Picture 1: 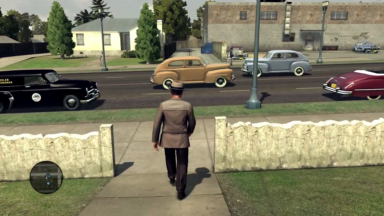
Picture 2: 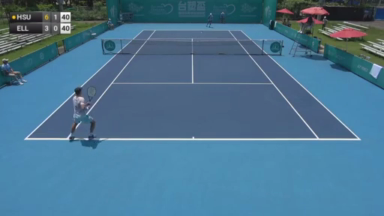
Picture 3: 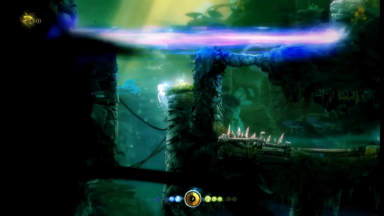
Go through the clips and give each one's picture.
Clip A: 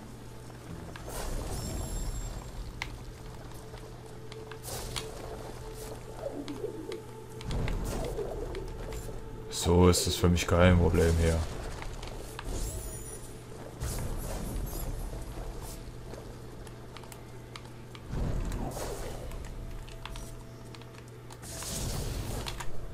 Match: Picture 3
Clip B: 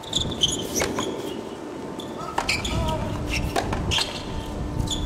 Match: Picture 2